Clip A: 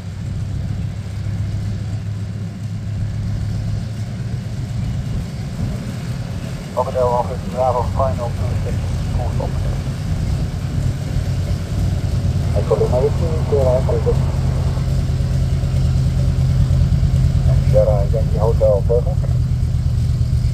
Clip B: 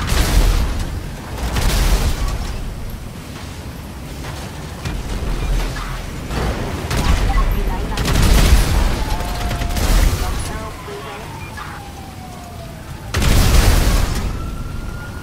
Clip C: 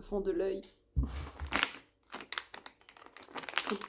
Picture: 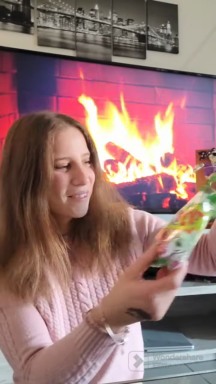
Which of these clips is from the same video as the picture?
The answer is C